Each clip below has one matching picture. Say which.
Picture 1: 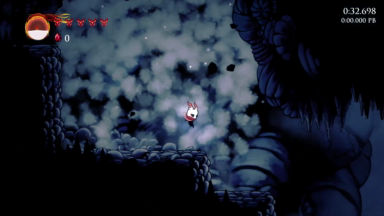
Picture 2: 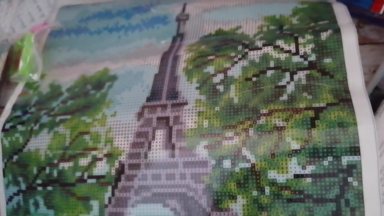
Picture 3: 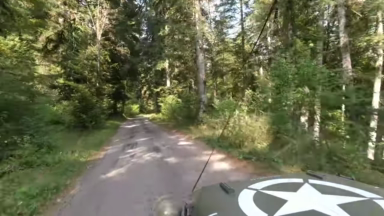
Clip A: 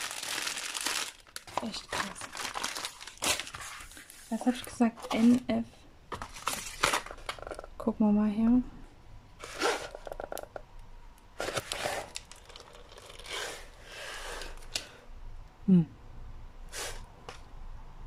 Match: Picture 2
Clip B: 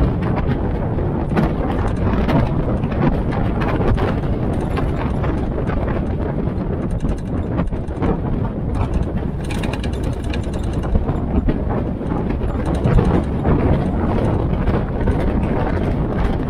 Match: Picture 3